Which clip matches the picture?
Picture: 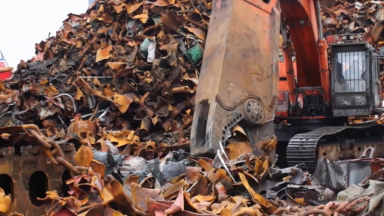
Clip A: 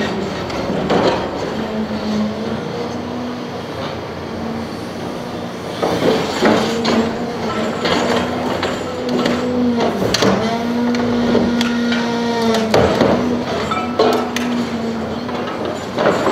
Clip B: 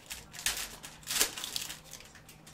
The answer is A